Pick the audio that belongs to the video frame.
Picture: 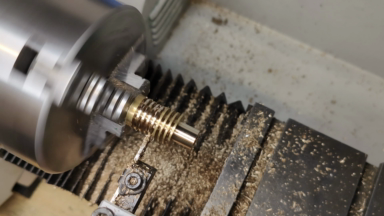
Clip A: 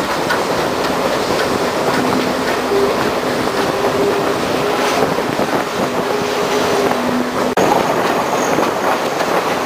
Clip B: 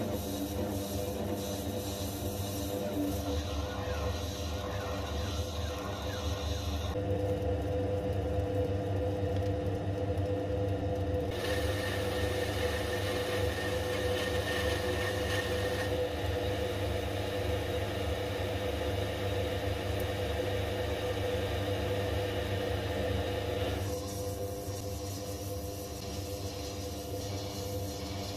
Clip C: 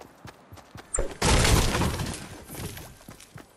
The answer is B